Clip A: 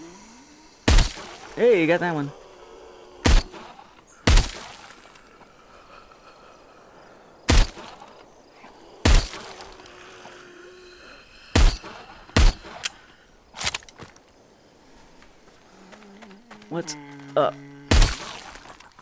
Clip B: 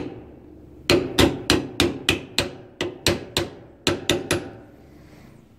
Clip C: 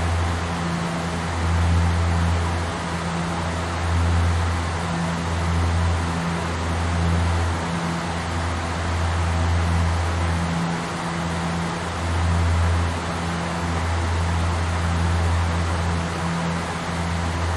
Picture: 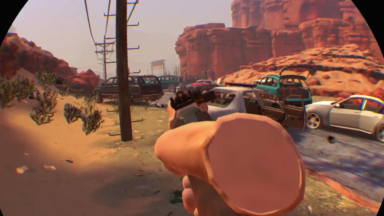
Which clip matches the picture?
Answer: A